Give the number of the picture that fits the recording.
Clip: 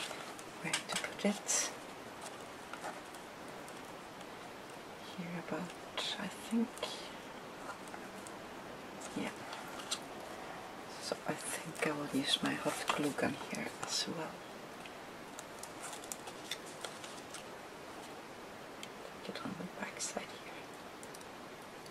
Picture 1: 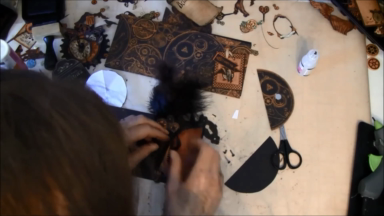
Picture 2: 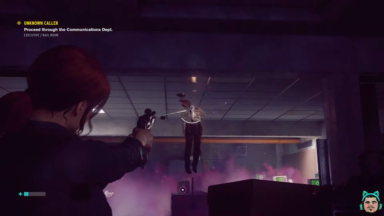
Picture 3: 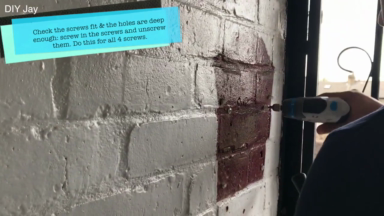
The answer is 1